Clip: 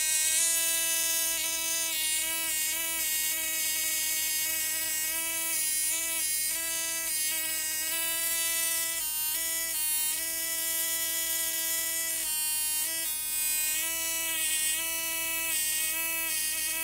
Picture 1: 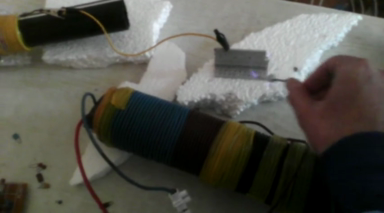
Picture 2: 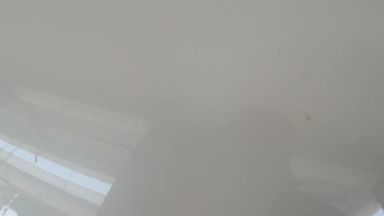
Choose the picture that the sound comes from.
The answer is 1